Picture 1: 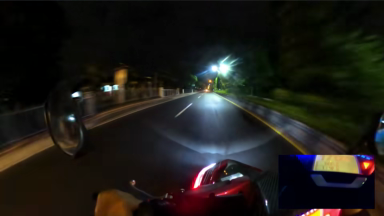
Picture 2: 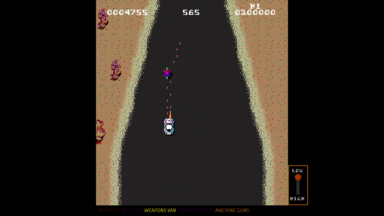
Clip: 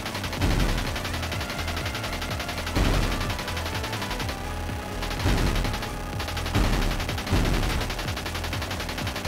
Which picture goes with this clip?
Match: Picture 2